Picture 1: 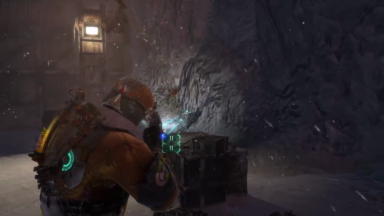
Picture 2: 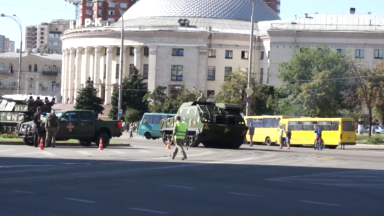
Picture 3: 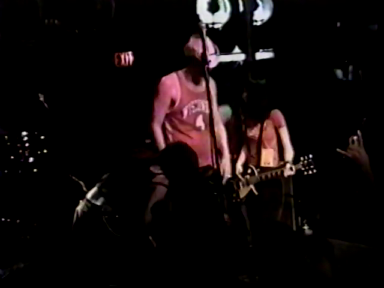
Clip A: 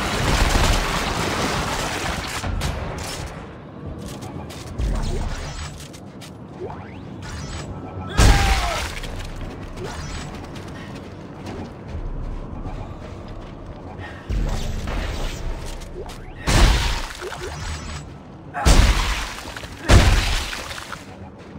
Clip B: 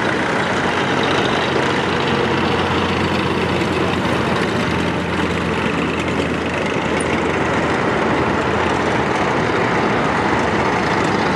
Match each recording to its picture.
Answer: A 1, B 2